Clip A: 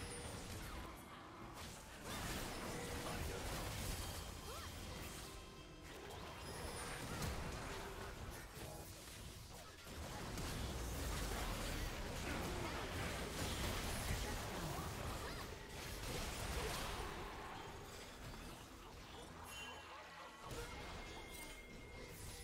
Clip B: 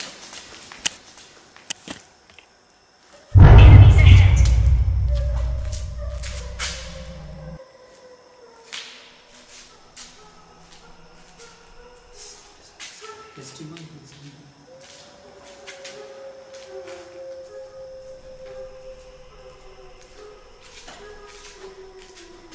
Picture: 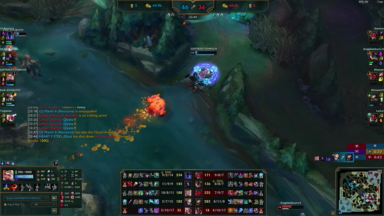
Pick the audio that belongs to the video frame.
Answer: A